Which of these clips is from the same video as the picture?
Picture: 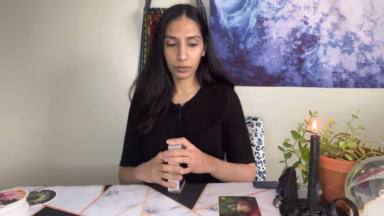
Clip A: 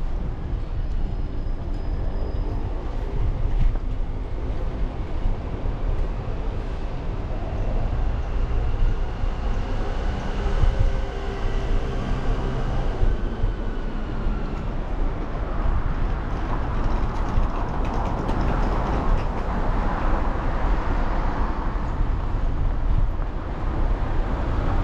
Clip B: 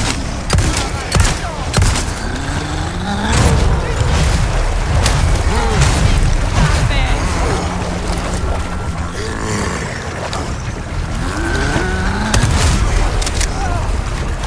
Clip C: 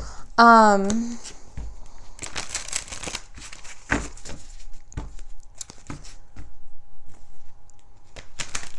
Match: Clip C